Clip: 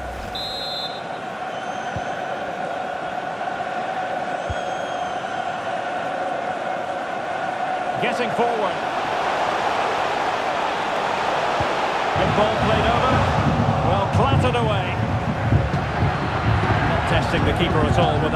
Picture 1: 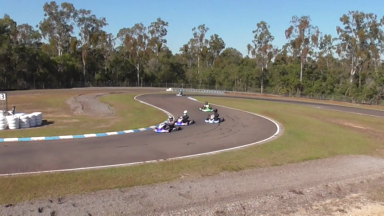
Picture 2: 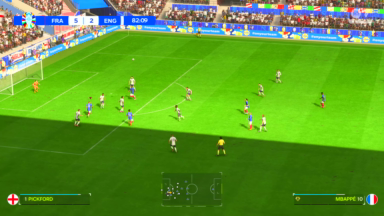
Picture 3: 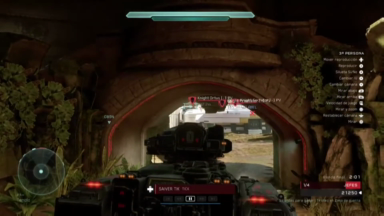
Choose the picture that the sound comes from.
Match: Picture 2